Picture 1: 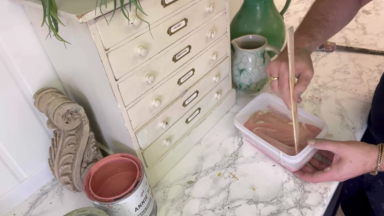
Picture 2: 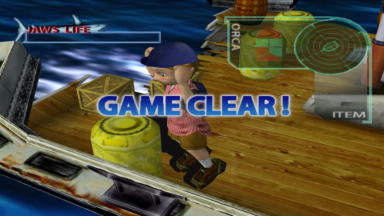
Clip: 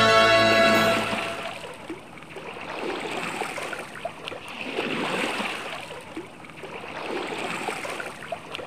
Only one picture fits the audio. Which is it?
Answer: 2